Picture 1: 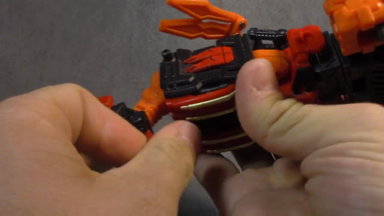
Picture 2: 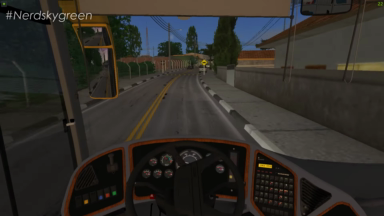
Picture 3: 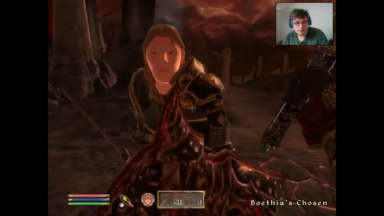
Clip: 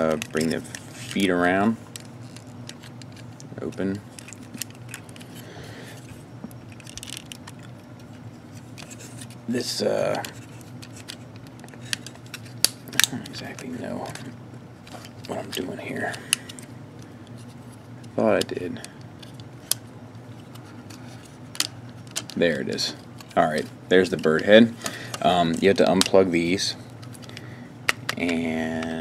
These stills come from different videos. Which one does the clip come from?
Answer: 1